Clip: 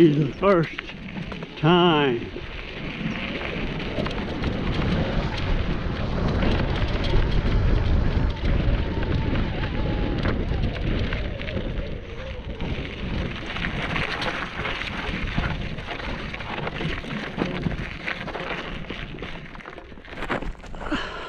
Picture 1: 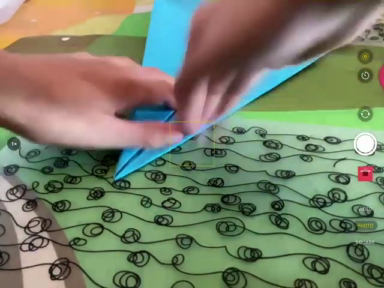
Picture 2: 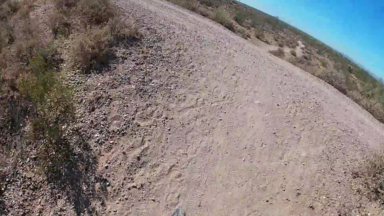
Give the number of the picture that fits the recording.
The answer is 2